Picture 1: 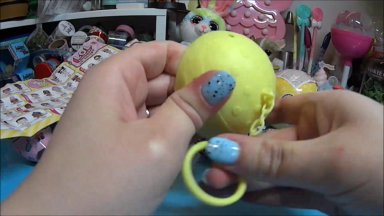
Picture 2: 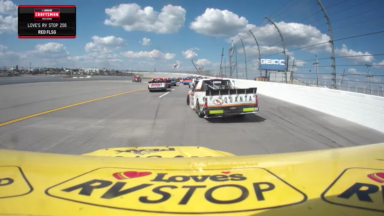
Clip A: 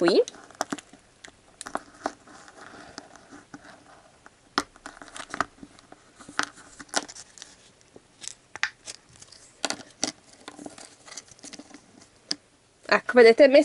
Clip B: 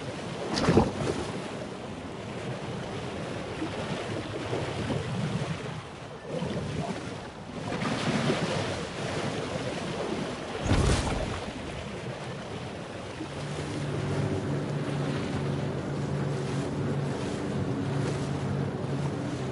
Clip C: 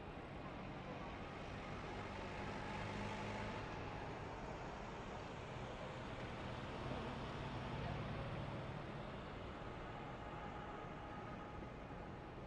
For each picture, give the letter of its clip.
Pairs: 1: A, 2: C